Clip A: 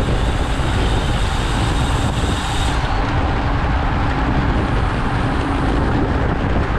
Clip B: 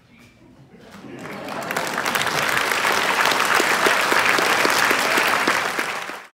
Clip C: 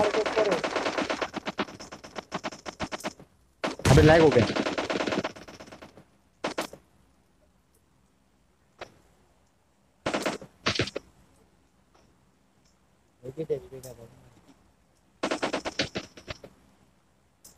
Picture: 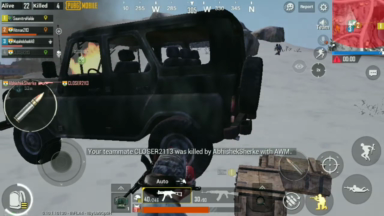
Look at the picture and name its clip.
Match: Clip C